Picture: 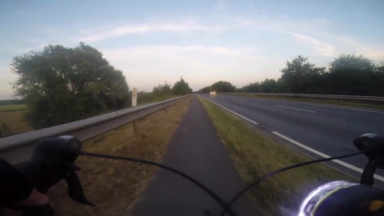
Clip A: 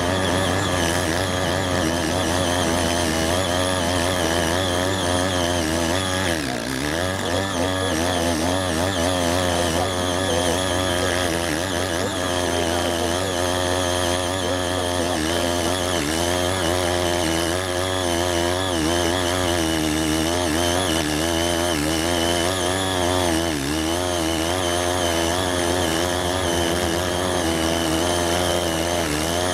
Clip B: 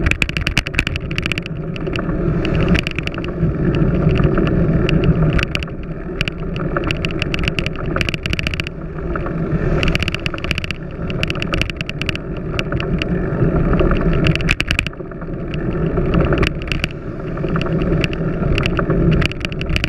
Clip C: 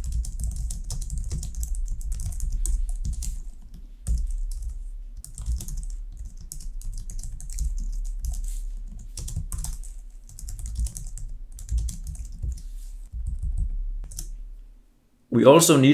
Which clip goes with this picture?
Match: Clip B